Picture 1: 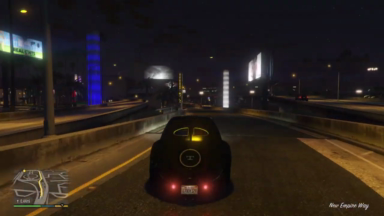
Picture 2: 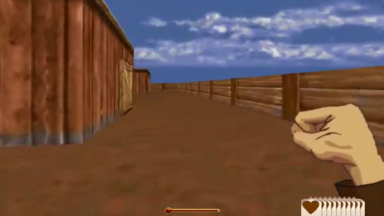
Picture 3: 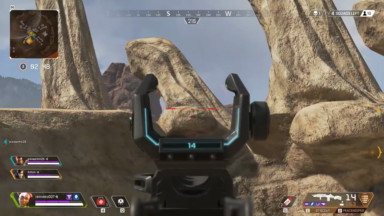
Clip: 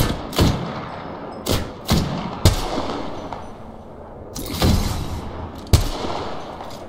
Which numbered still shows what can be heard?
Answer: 3